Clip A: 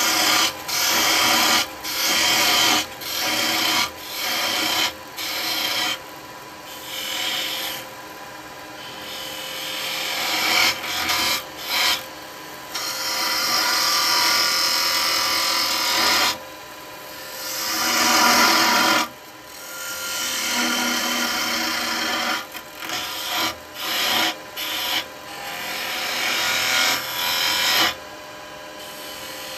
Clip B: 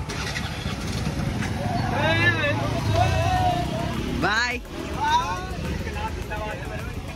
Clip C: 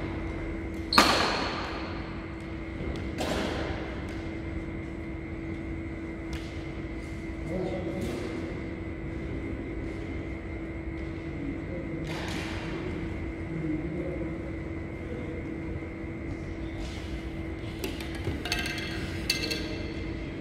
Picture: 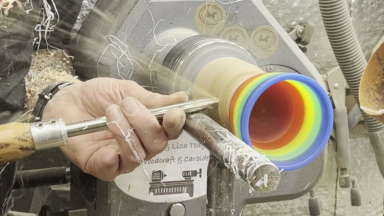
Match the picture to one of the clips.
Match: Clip A